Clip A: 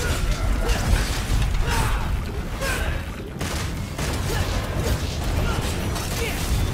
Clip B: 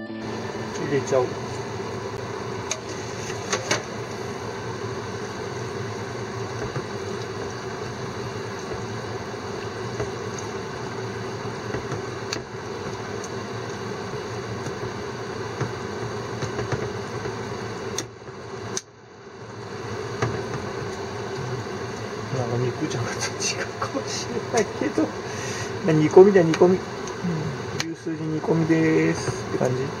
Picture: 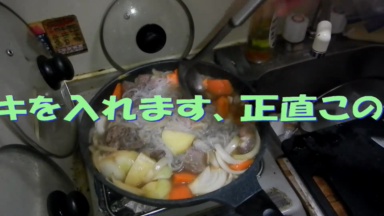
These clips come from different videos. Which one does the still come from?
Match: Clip B